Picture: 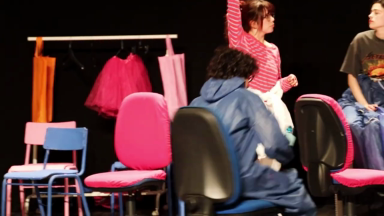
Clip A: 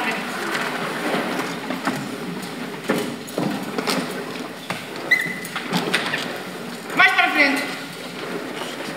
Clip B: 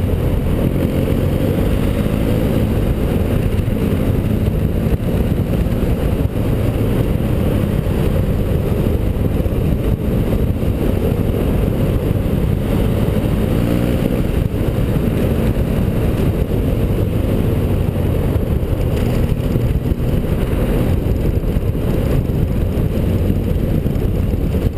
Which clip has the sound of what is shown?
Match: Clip A